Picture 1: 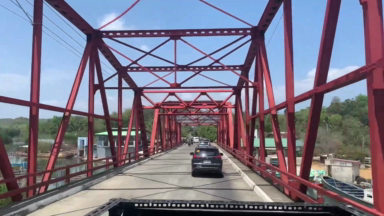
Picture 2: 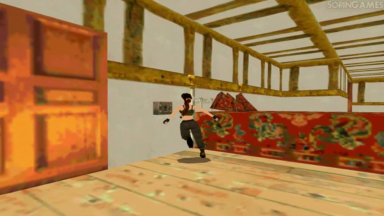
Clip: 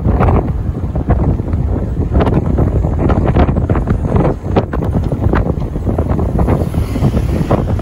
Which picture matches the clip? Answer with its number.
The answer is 1